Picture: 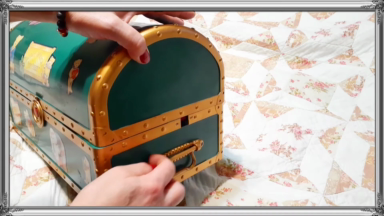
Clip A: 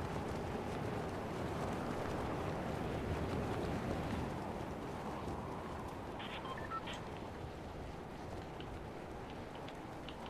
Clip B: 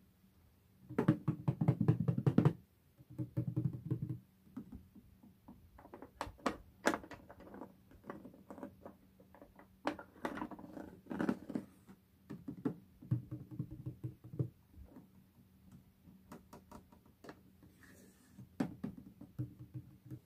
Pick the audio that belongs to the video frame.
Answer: B